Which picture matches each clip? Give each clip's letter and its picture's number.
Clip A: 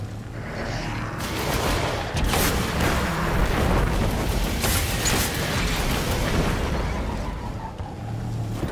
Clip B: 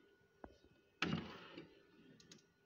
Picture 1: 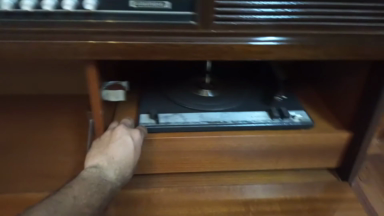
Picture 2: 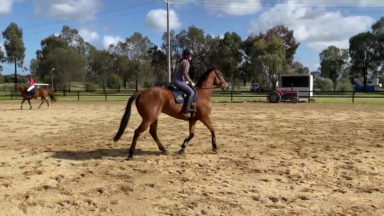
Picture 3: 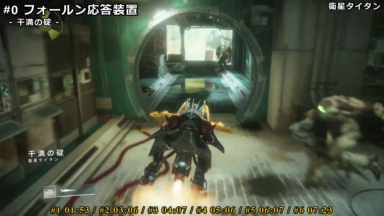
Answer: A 3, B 1